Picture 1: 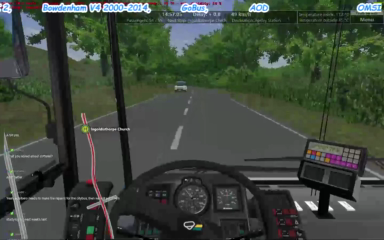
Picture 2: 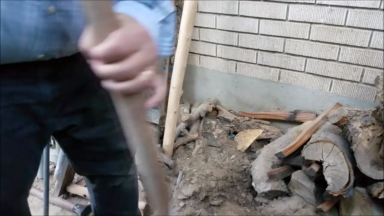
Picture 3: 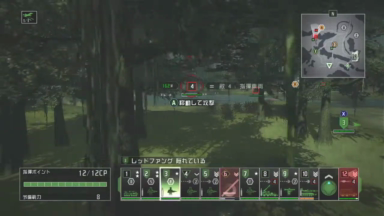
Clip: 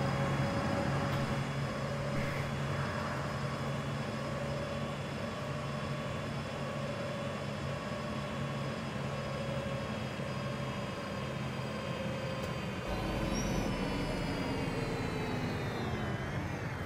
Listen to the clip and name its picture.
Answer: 1